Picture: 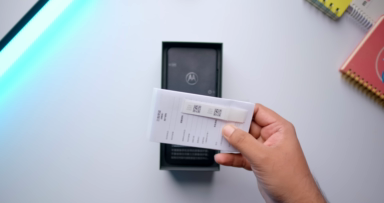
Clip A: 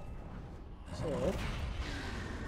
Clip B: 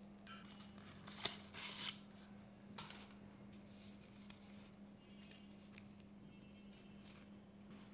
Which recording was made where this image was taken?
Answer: B